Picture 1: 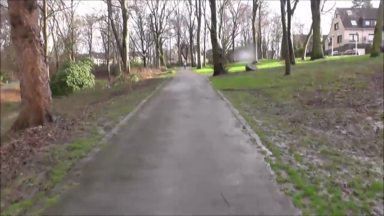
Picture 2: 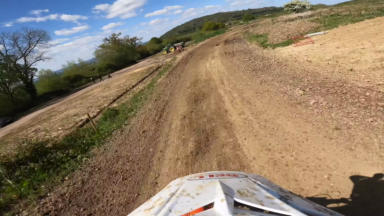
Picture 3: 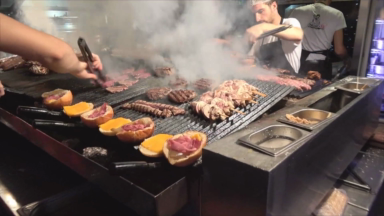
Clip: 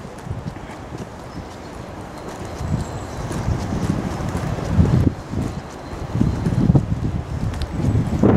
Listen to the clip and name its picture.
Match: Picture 1